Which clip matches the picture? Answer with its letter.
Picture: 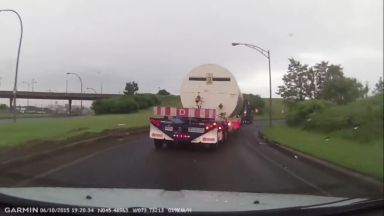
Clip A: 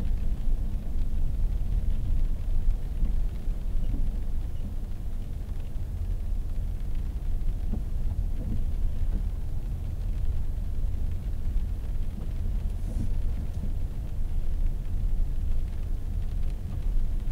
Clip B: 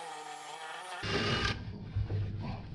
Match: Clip A